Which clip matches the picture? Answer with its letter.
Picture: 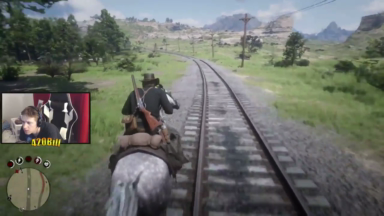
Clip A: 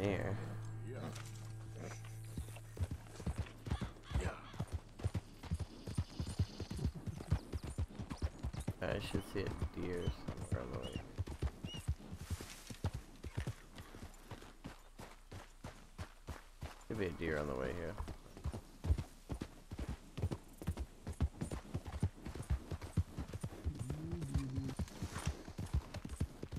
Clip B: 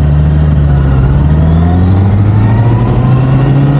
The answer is A